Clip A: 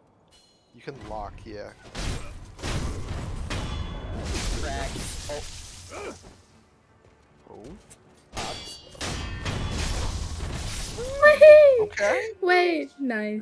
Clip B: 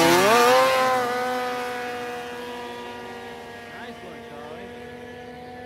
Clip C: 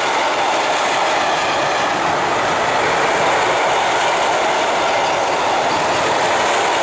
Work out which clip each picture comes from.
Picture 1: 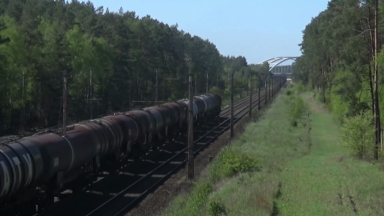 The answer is C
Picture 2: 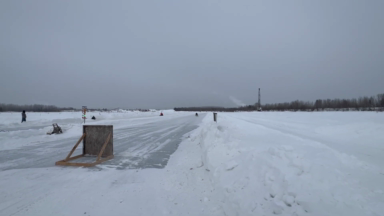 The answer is B